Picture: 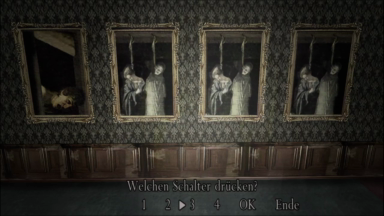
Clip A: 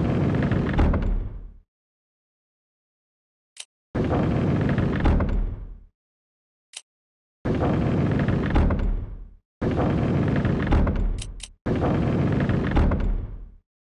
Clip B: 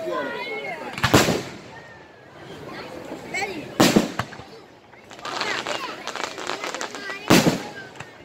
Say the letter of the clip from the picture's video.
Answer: A